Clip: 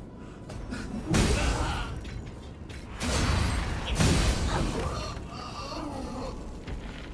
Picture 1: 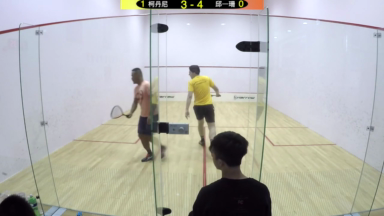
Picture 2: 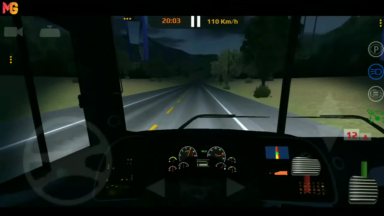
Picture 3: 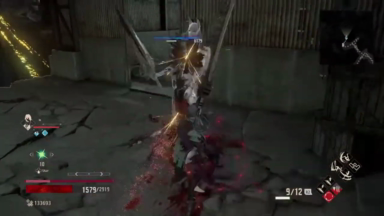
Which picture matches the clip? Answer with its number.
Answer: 3